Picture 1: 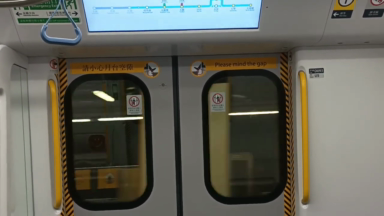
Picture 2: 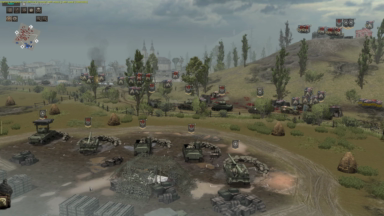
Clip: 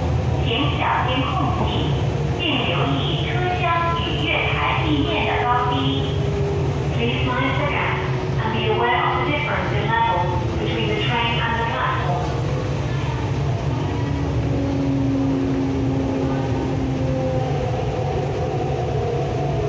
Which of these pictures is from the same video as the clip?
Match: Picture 1